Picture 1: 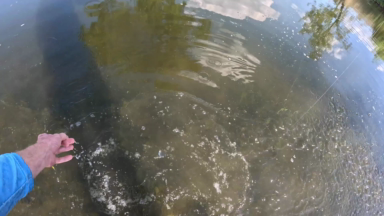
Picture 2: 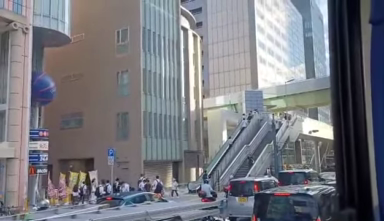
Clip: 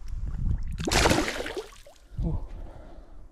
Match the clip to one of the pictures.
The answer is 1